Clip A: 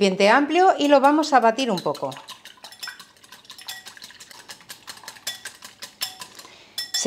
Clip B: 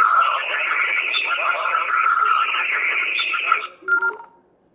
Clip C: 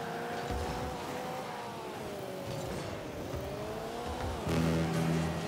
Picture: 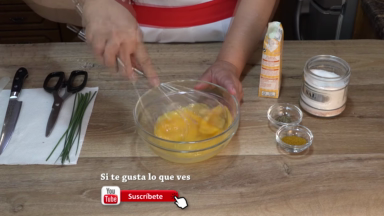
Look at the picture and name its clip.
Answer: A